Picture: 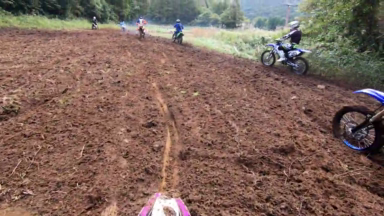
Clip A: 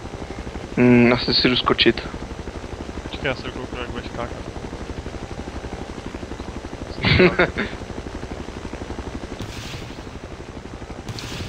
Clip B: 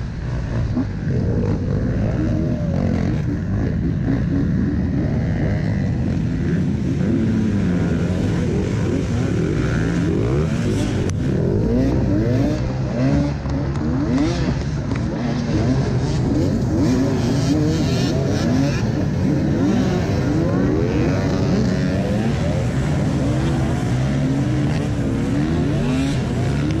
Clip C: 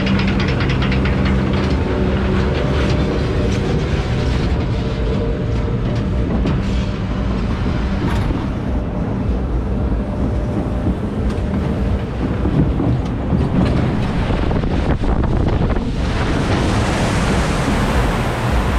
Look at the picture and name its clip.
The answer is B